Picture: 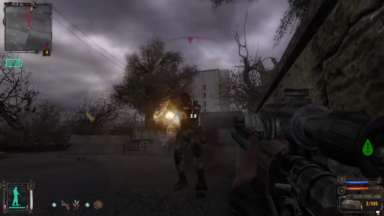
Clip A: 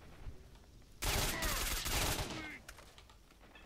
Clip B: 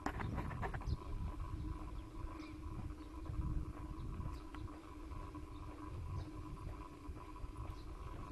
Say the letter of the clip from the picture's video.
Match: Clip A